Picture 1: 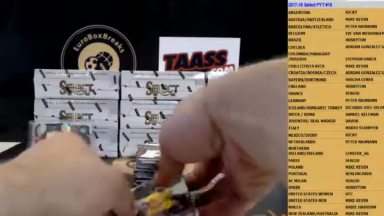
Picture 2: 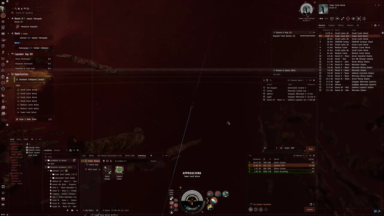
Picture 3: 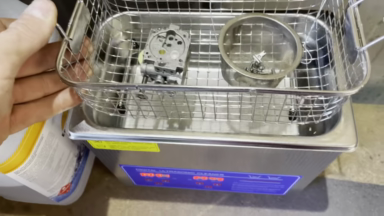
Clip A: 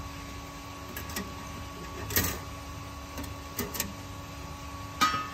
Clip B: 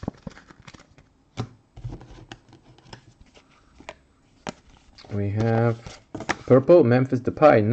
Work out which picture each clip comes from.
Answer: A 3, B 1